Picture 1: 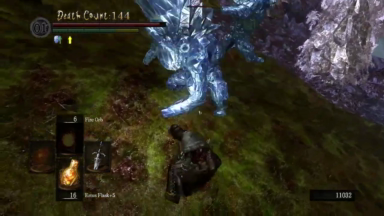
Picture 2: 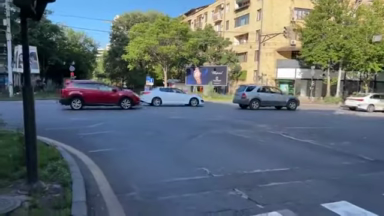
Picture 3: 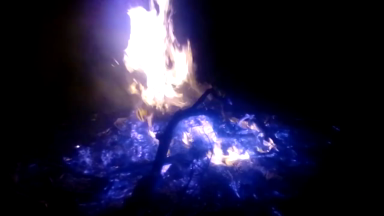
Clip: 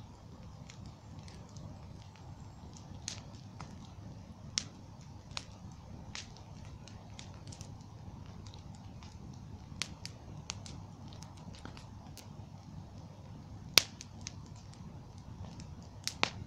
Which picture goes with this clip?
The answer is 3